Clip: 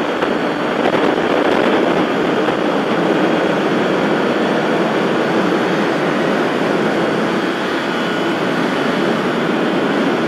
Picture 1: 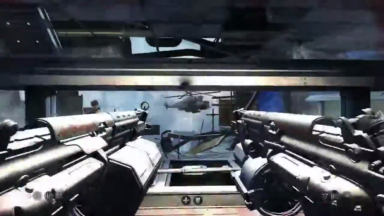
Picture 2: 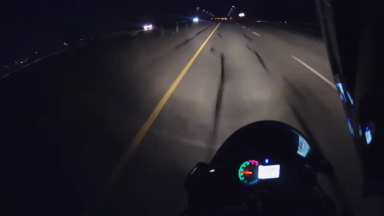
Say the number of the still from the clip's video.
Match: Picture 2